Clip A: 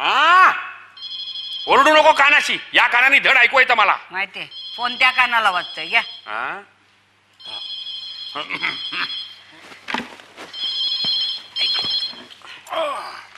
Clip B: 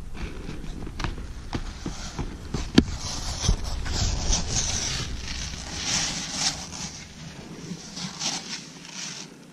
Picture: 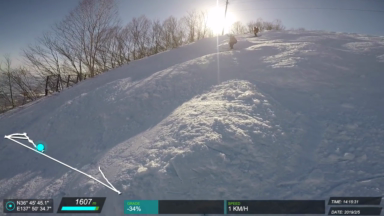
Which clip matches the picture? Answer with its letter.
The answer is B